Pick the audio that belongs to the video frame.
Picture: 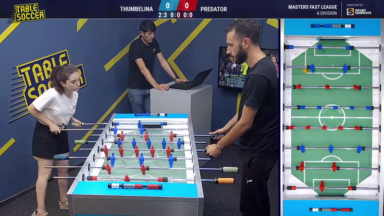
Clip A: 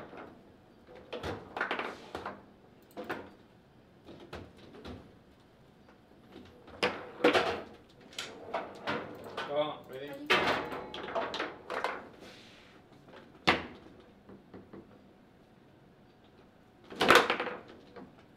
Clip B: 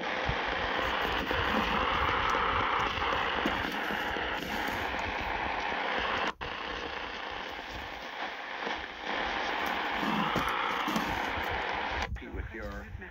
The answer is A